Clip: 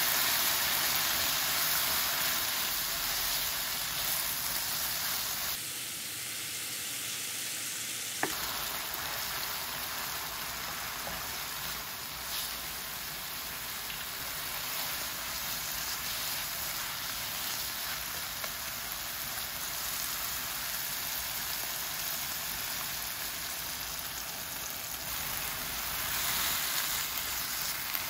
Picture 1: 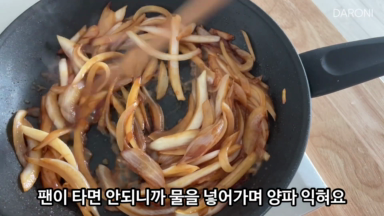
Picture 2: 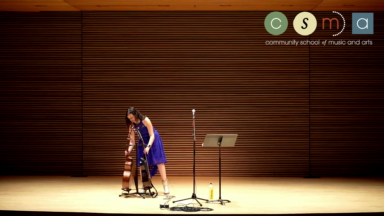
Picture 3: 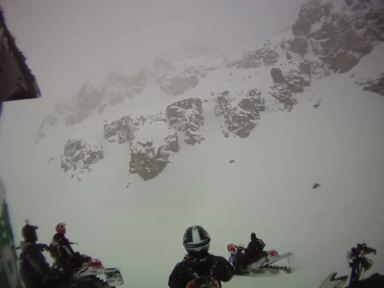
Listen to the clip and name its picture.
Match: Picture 1